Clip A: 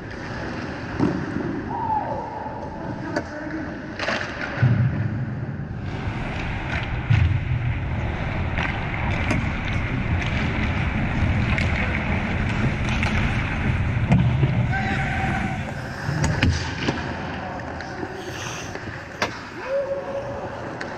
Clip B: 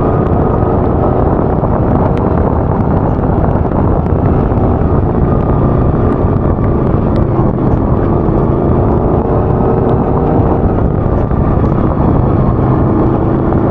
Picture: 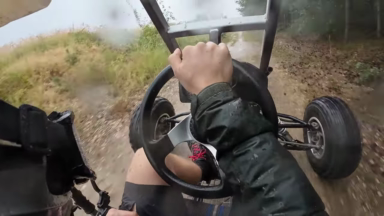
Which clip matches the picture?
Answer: B